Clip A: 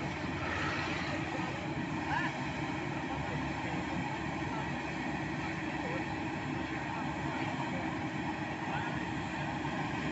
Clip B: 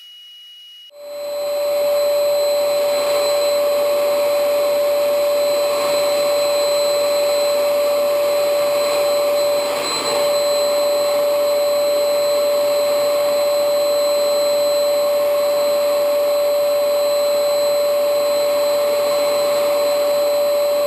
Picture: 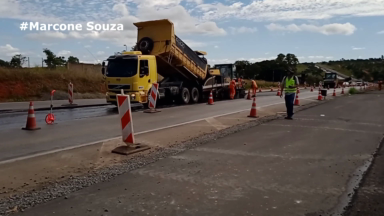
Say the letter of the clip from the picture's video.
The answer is A